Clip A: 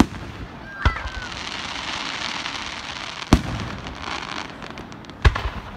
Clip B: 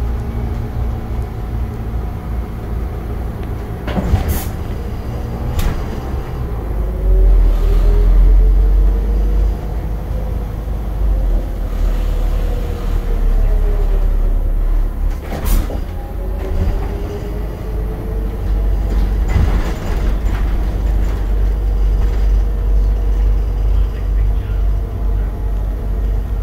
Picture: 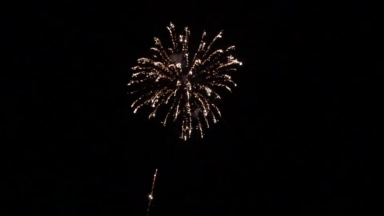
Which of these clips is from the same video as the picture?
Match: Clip A